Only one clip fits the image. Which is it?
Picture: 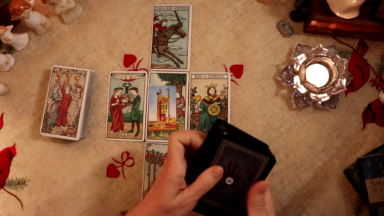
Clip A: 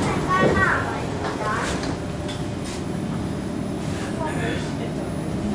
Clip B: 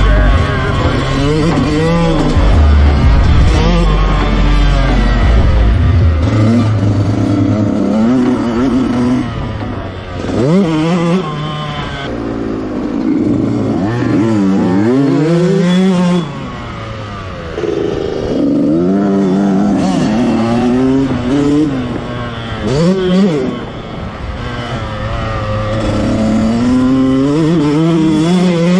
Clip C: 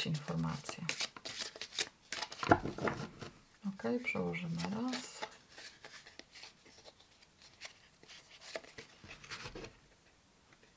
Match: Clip C